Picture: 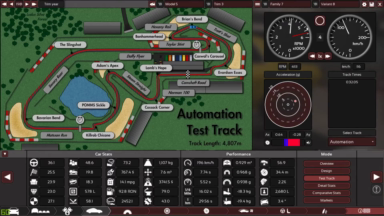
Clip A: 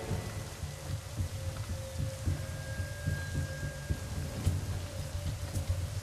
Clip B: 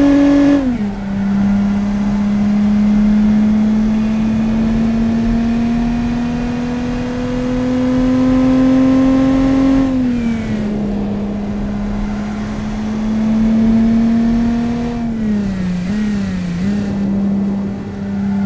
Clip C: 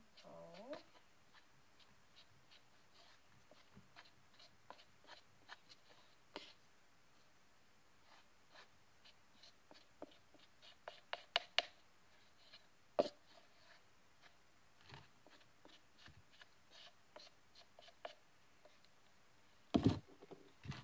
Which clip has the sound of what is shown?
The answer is B